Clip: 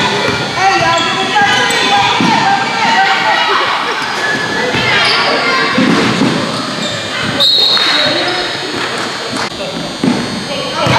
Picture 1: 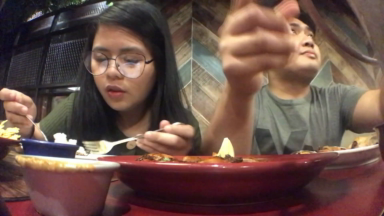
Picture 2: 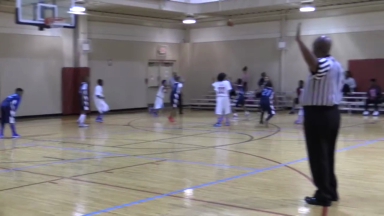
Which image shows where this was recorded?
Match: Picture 2